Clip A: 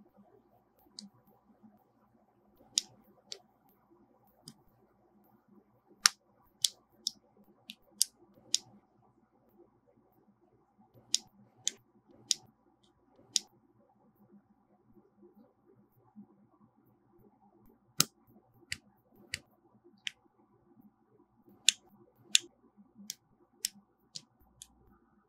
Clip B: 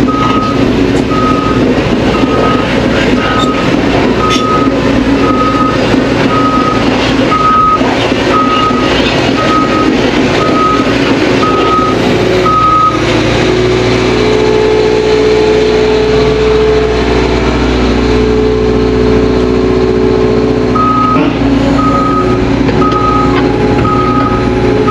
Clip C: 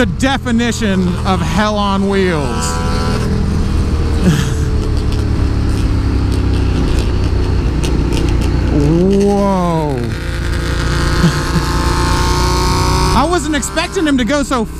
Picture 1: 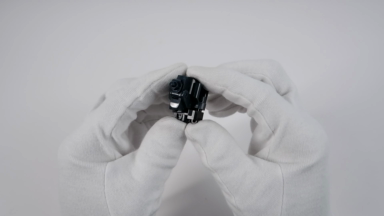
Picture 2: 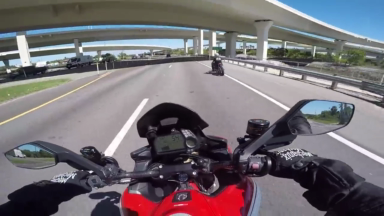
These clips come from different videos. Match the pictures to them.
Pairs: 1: A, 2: C